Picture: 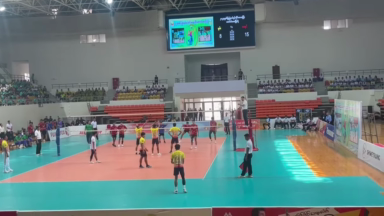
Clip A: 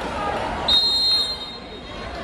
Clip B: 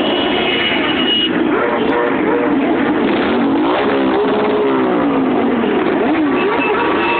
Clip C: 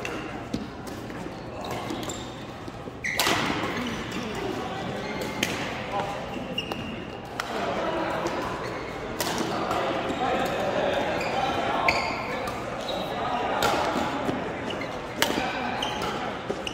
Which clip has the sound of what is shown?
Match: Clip A